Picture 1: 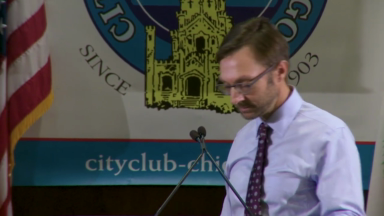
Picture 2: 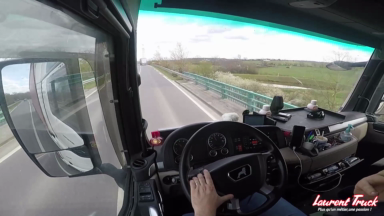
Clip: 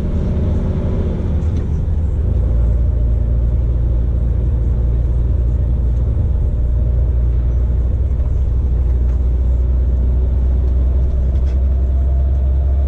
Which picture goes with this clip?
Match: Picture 2